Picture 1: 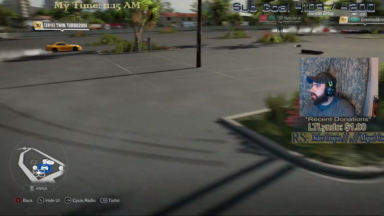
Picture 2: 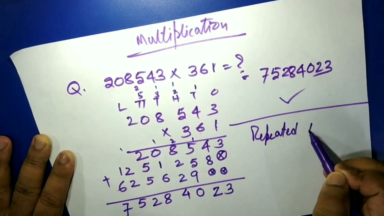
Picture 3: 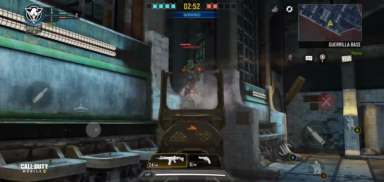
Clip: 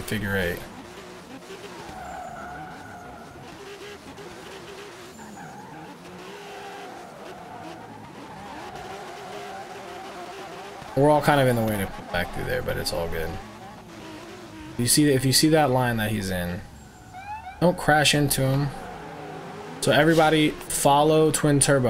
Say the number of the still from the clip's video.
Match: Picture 1